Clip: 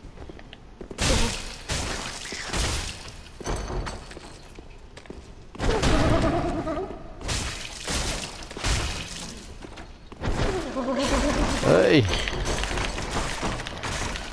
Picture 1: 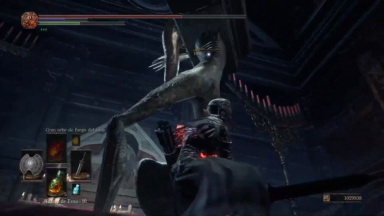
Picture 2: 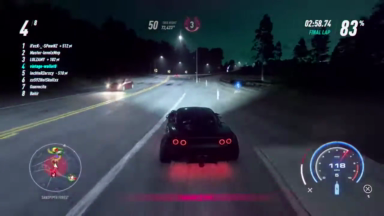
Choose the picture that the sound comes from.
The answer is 1